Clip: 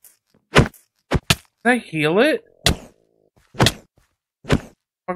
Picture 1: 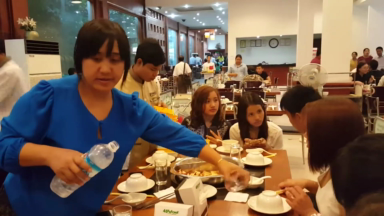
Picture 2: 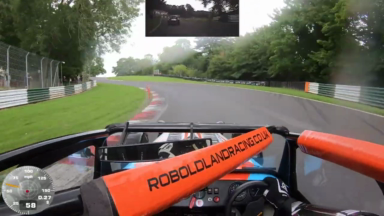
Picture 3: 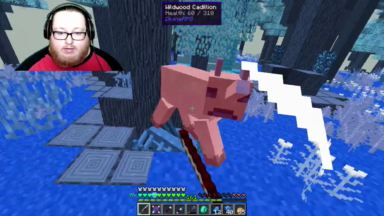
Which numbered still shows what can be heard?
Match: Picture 3